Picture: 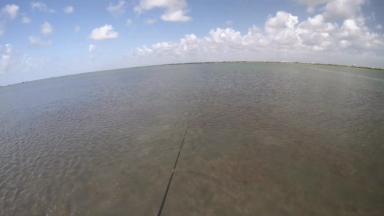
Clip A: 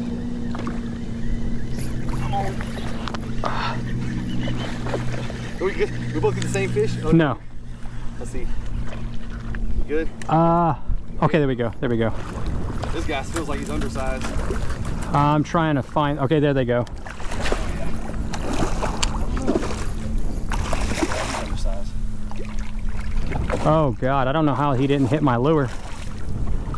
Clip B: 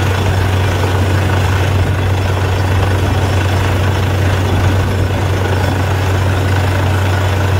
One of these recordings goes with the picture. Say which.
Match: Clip A